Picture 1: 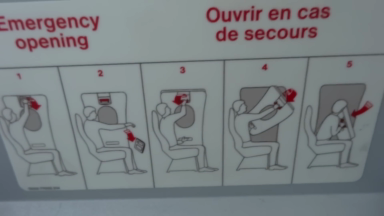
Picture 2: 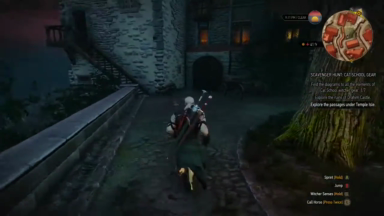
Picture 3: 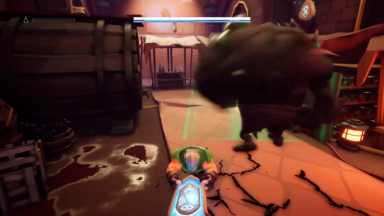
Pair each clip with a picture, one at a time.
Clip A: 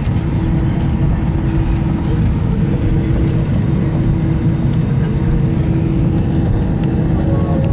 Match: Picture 1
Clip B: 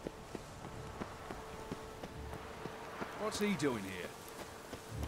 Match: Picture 2